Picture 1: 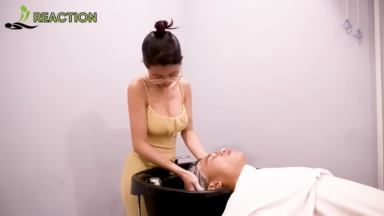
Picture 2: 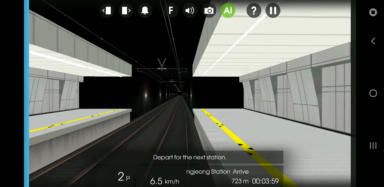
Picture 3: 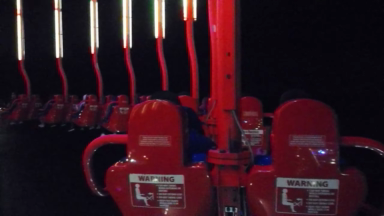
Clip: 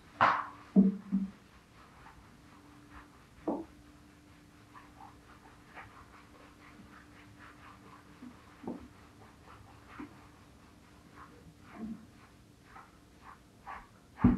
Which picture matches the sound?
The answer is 1